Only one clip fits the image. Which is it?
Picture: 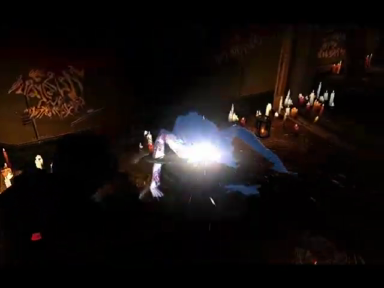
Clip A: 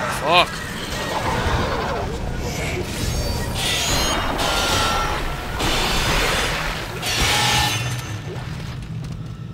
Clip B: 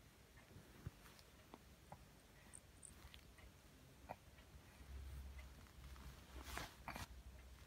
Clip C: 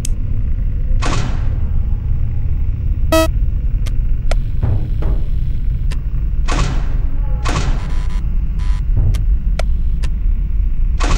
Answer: A